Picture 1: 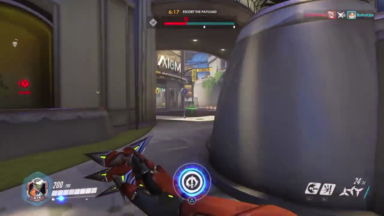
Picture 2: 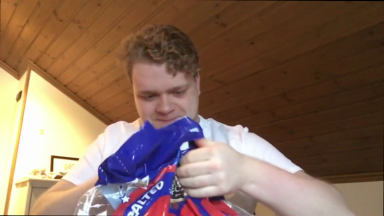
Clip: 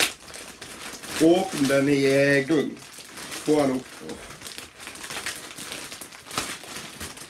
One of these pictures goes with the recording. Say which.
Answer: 2